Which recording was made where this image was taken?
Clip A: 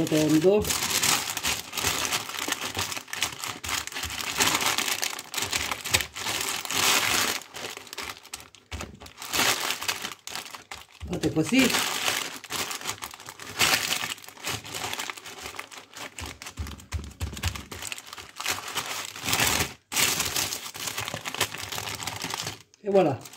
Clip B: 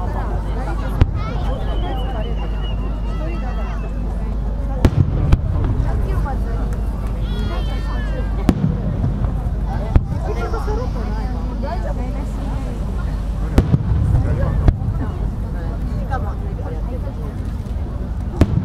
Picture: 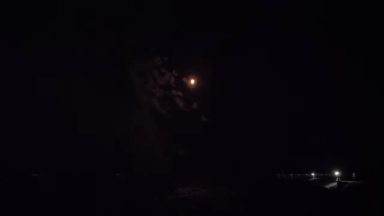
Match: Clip B